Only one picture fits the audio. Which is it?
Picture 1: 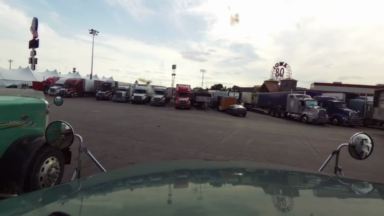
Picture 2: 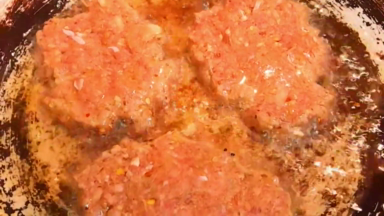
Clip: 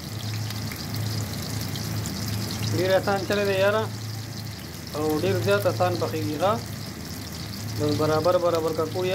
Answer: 2